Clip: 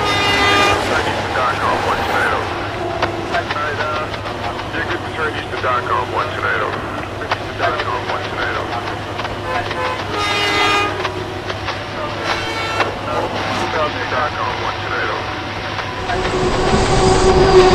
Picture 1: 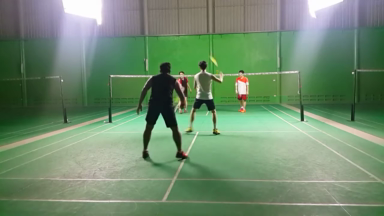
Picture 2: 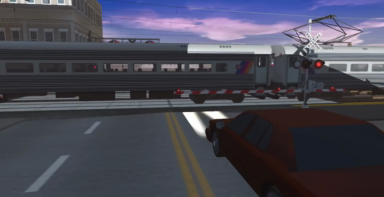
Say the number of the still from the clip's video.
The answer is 2